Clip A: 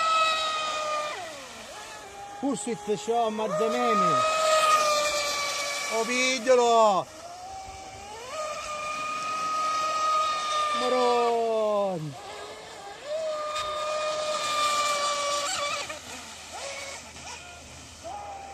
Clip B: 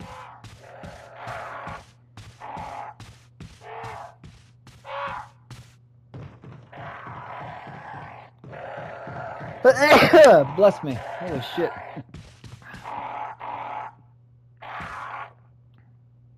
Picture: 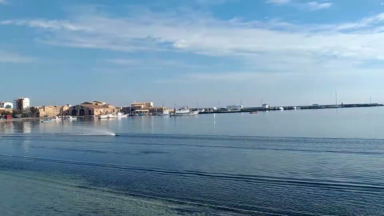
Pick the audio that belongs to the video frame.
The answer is A